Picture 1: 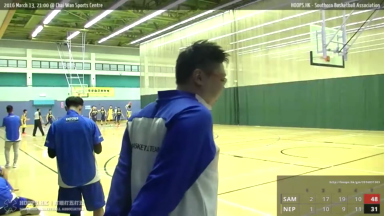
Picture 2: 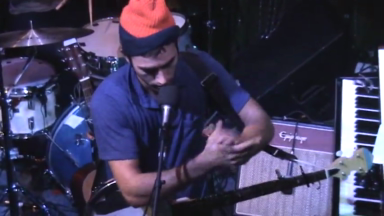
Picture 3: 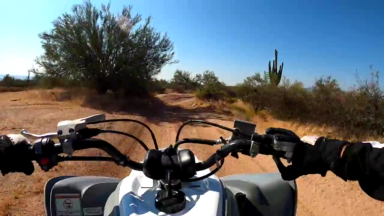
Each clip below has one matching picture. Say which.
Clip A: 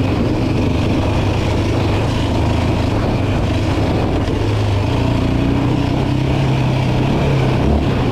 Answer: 3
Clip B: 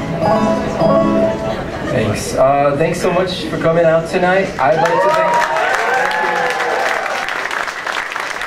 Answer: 2